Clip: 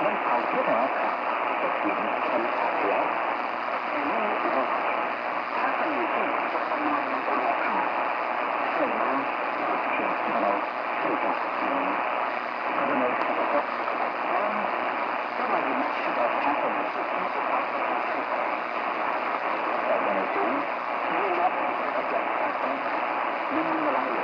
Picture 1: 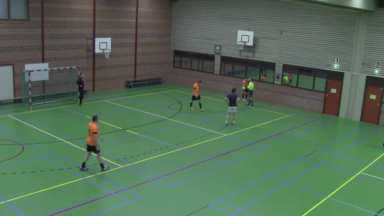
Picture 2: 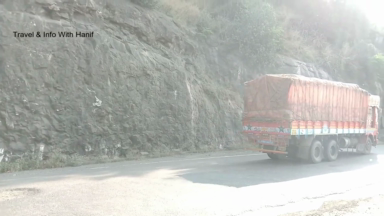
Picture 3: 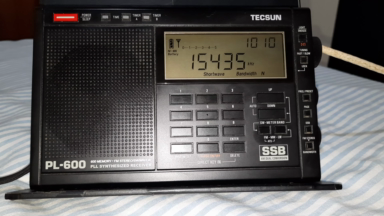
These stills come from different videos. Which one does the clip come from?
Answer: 3